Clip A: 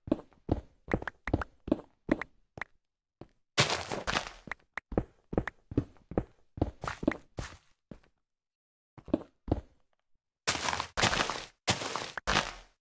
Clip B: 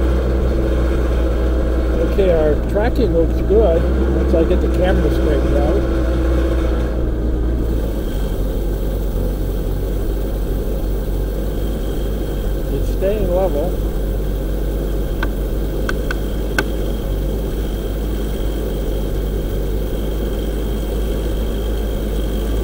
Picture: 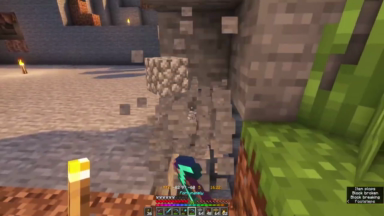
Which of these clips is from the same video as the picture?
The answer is A